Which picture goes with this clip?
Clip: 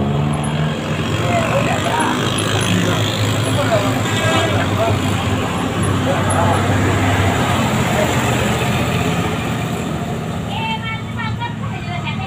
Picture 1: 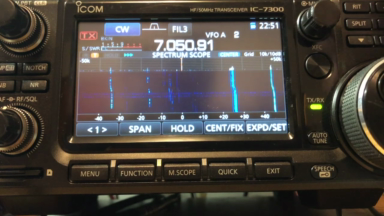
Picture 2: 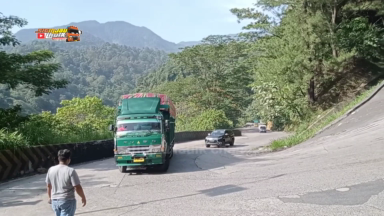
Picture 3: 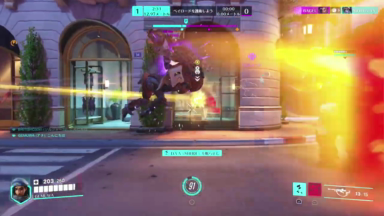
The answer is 2